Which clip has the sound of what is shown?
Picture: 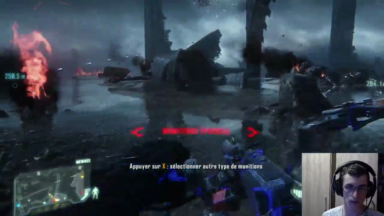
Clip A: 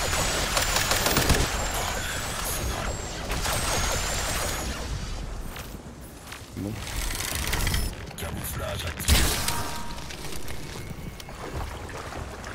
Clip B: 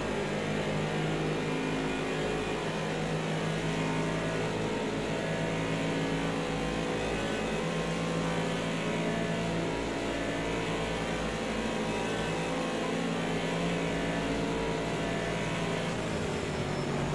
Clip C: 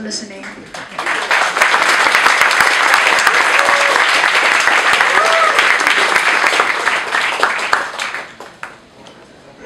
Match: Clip A